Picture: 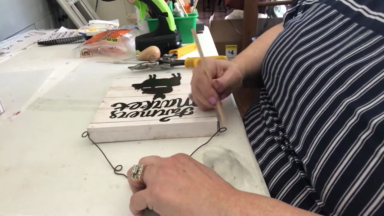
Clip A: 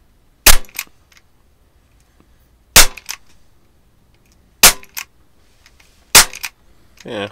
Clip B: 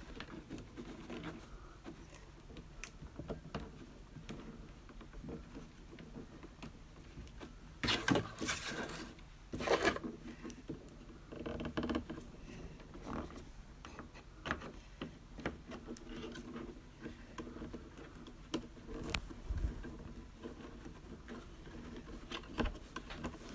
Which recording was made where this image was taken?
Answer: B